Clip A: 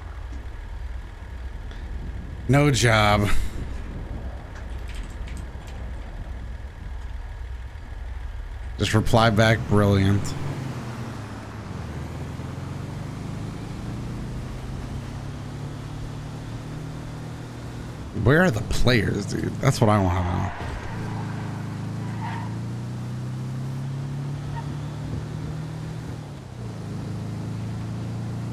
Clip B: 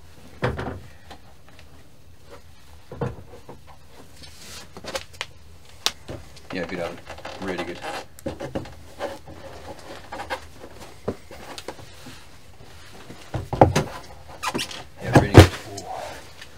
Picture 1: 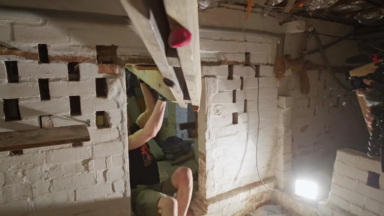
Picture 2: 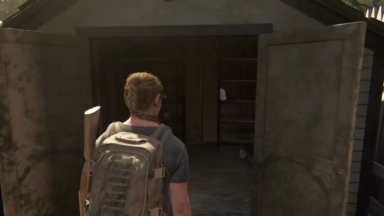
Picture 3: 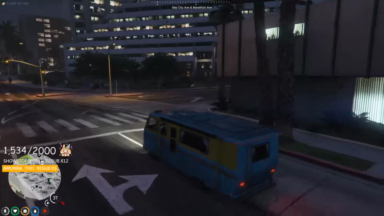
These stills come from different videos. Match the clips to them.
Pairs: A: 3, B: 1